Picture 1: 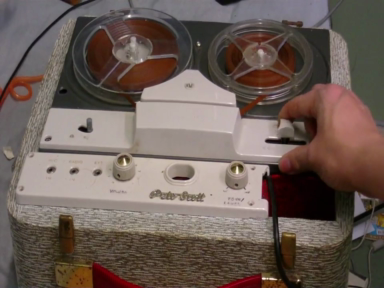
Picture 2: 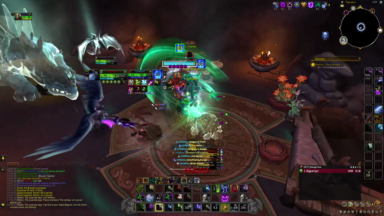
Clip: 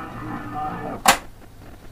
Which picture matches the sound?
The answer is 1